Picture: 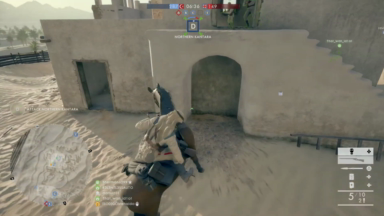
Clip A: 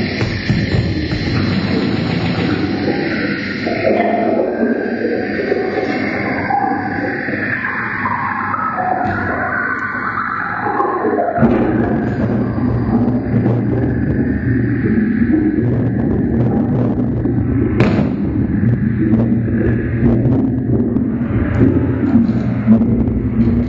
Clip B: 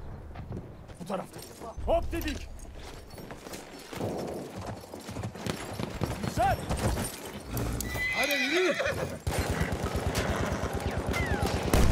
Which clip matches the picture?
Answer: B